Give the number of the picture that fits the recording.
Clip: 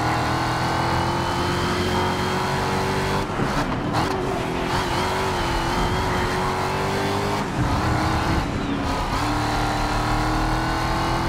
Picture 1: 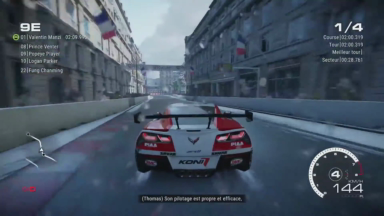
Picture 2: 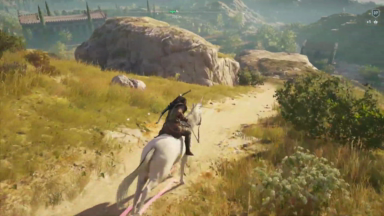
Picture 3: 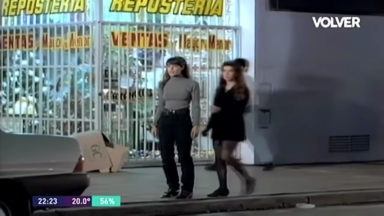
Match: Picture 1